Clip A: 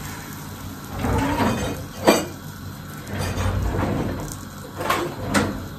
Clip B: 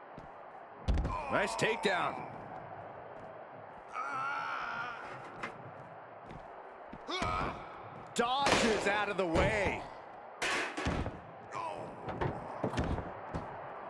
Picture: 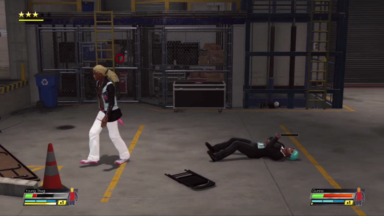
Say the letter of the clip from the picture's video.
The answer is B